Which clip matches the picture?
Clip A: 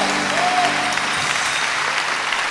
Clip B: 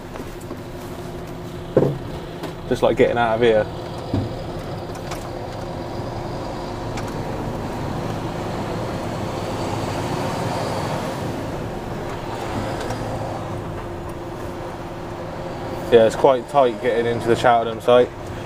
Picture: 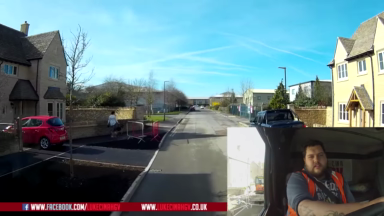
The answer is B